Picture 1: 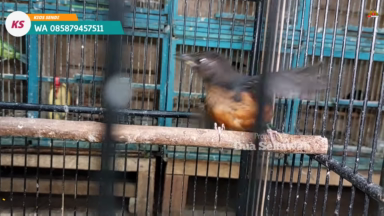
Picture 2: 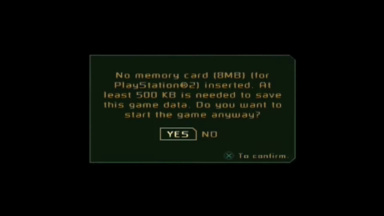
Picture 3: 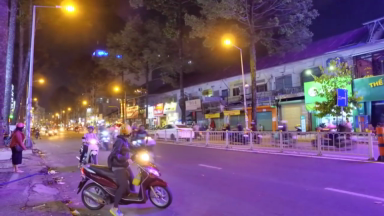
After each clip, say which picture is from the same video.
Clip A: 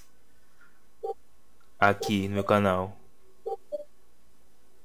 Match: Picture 2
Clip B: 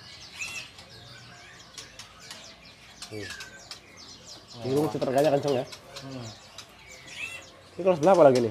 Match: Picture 1